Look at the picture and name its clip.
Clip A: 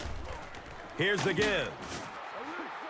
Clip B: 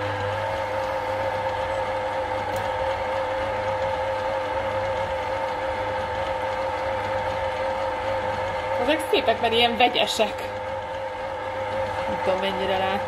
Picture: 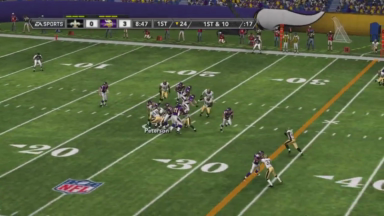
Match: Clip A